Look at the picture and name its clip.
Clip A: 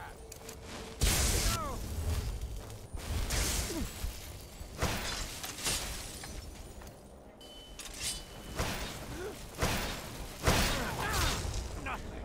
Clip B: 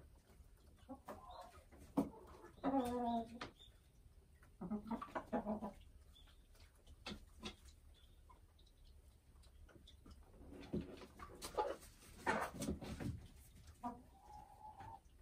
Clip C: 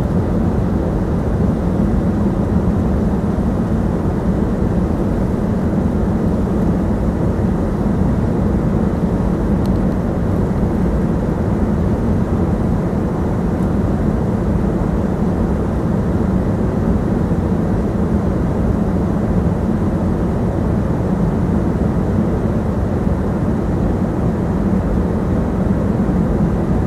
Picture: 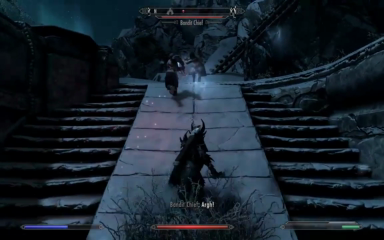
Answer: A